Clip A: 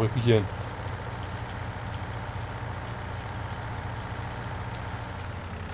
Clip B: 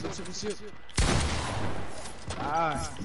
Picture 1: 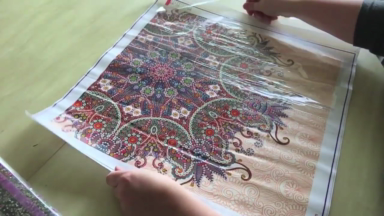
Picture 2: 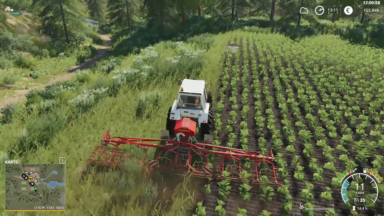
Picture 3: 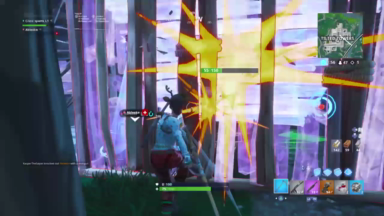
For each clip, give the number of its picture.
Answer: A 2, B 3